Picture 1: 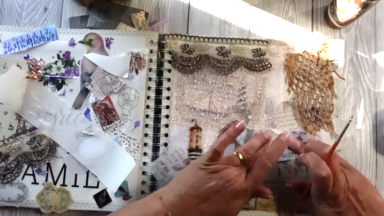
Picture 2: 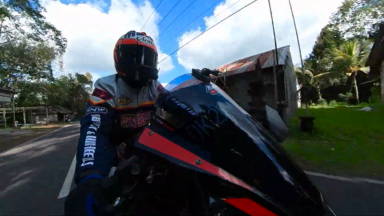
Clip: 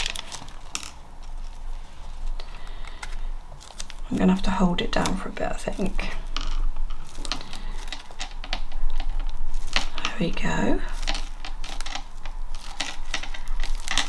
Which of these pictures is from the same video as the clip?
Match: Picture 1